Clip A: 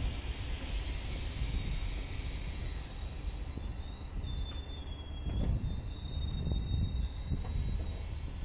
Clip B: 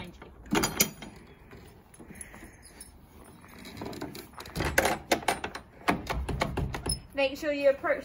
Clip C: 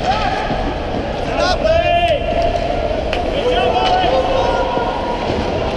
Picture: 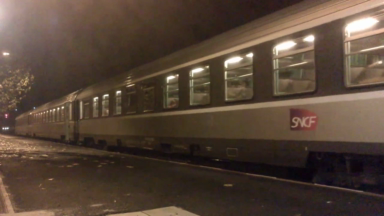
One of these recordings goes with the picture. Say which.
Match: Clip A